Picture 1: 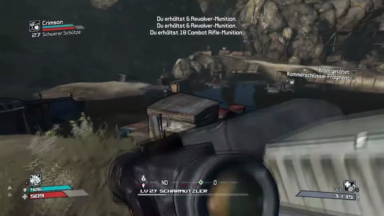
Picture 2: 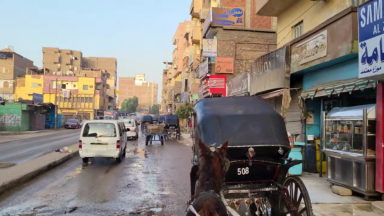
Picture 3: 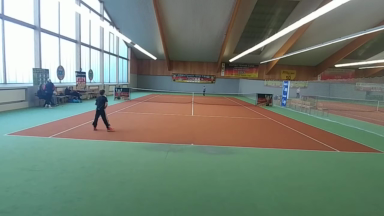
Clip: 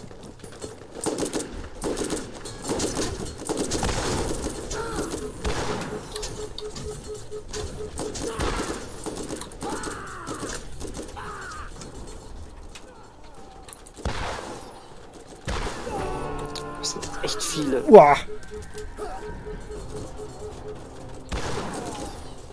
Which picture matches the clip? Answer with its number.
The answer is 1